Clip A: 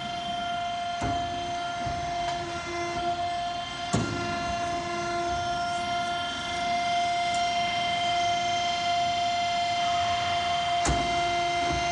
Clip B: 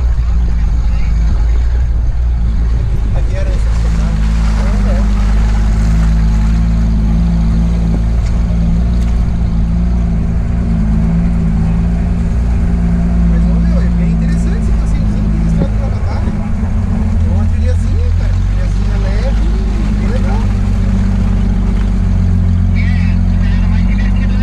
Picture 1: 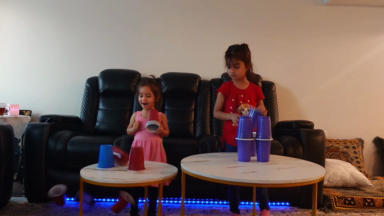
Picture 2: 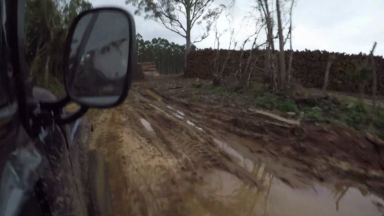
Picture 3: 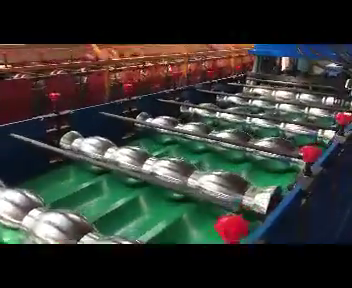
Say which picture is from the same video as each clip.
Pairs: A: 3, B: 2